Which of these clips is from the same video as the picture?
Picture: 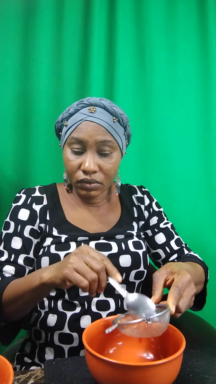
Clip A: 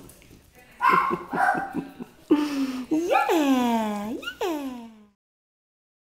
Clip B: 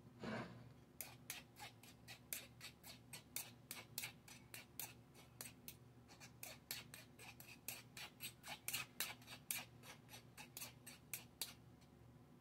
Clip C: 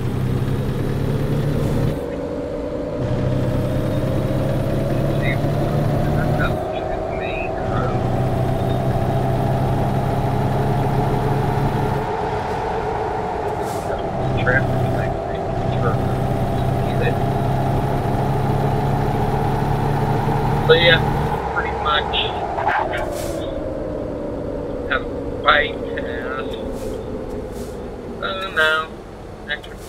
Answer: B